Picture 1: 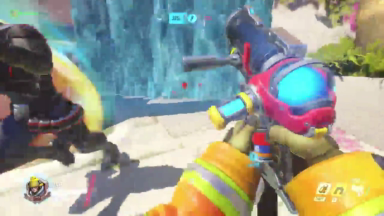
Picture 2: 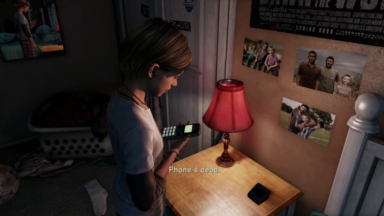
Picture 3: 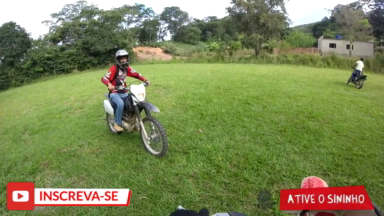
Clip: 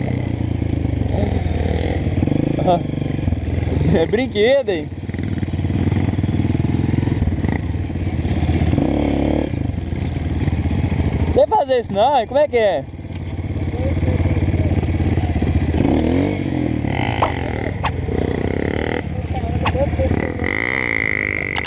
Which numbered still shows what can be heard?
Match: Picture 3